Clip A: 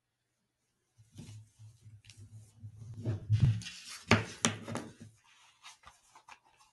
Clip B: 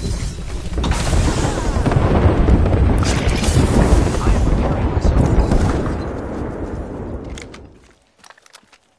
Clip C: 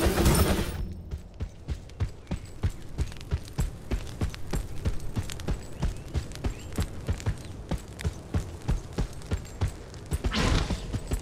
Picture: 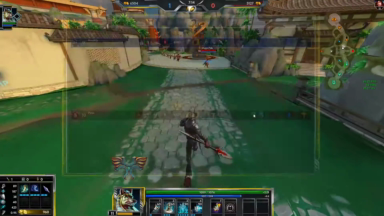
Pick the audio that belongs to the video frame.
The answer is C